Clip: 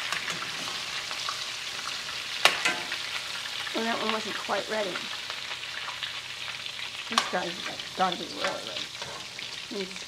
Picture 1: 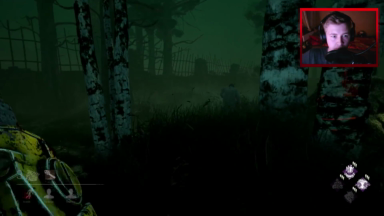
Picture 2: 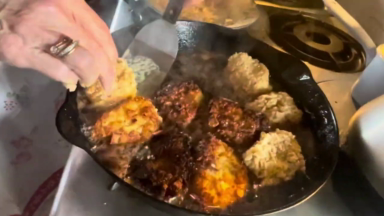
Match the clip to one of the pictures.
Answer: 2